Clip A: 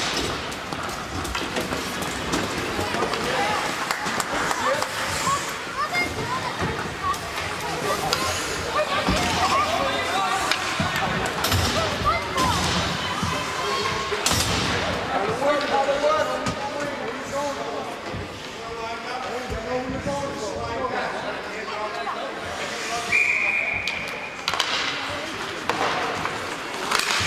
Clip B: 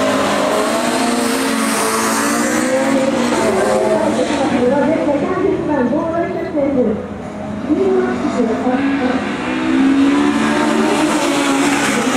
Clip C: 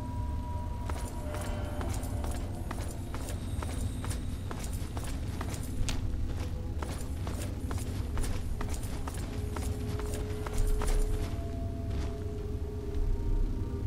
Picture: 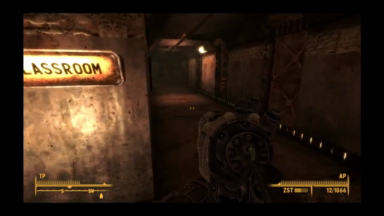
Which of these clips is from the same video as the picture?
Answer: C